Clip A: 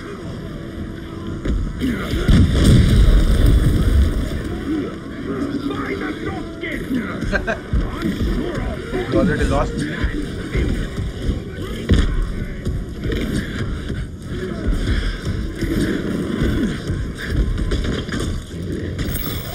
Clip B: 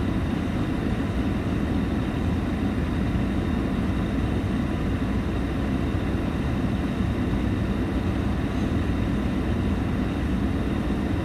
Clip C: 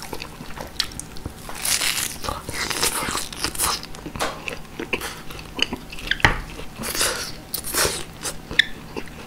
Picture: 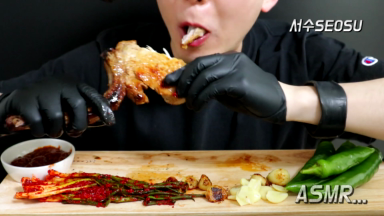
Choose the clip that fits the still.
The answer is C